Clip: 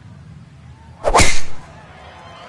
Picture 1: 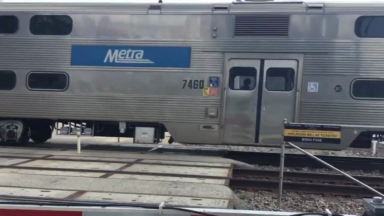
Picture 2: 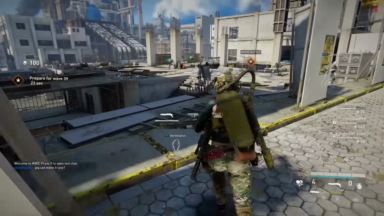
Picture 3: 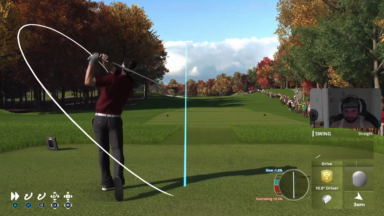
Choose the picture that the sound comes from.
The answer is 3